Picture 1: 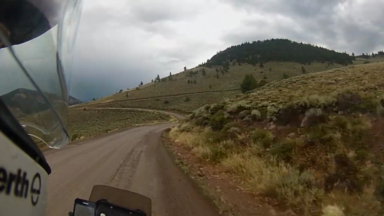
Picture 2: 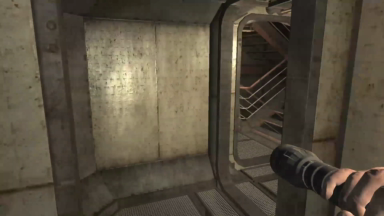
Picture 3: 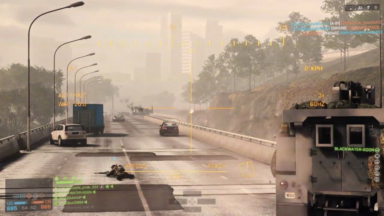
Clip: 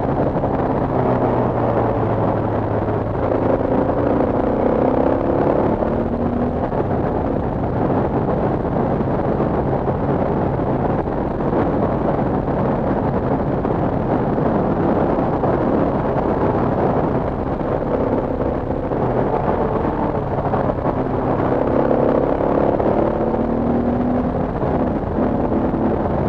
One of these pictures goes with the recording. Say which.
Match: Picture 1